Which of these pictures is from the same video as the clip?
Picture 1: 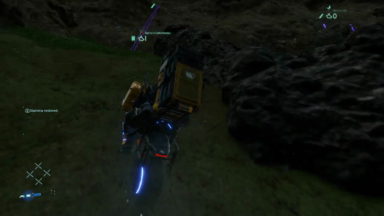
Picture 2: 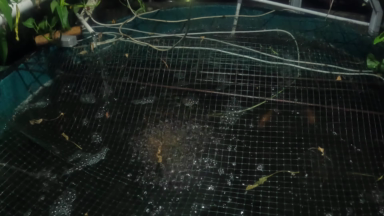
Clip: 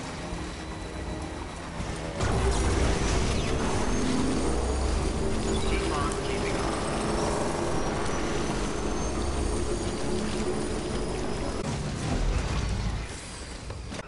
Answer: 1